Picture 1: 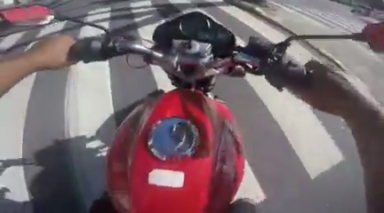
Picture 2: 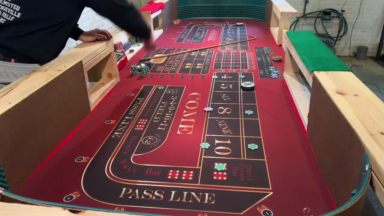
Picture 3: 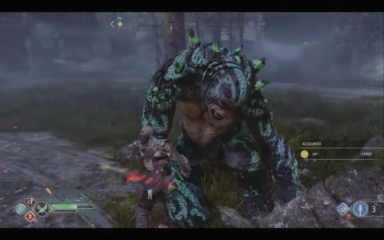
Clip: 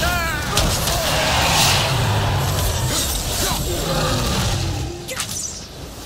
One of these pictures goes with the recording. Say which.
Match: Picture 3